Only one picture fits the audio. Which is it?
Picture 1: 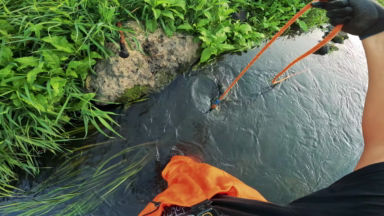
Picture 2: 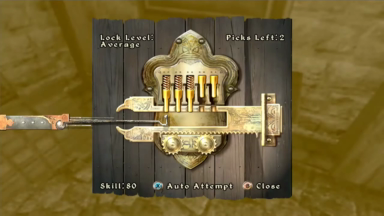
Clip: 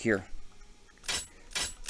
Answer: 2